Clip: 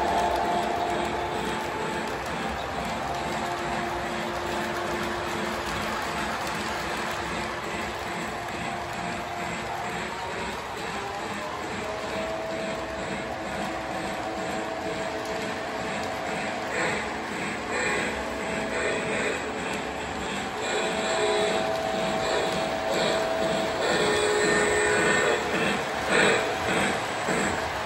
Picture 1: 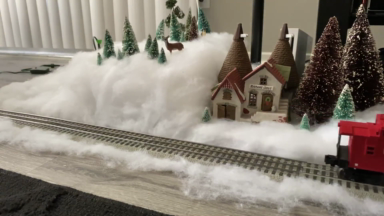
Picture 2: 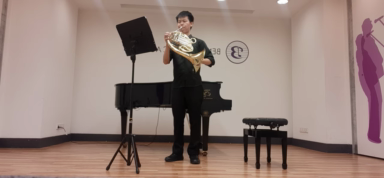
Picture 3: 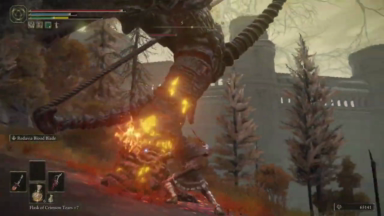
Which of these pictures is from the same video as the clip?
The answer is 1